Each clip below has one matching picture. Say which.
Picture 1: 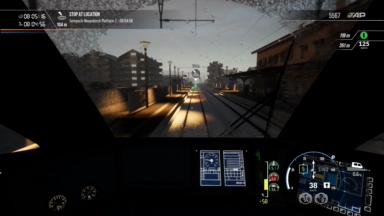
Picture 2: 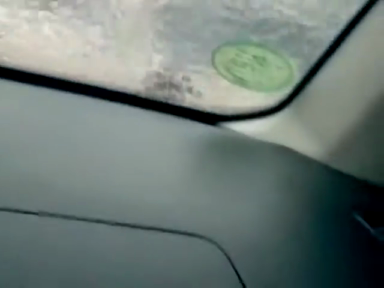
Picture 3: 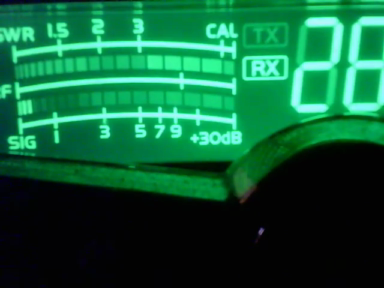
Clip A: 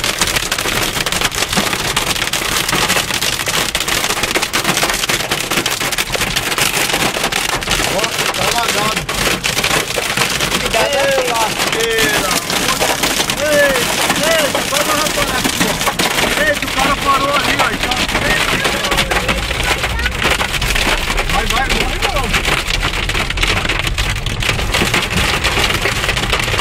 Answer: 2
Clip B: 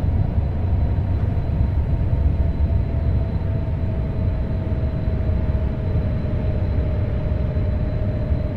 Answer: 1